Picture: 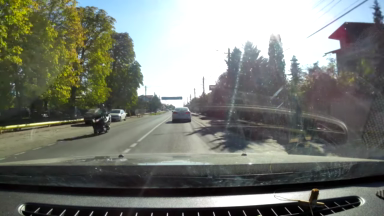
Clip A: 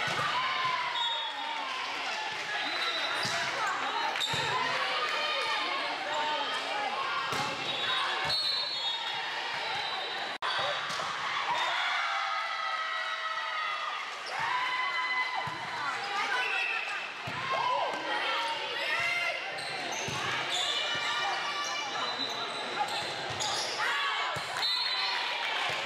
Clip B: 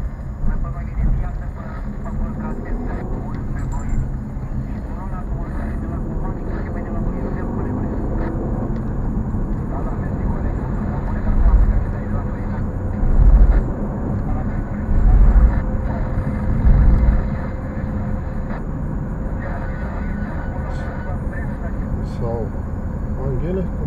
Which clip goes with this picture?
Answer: B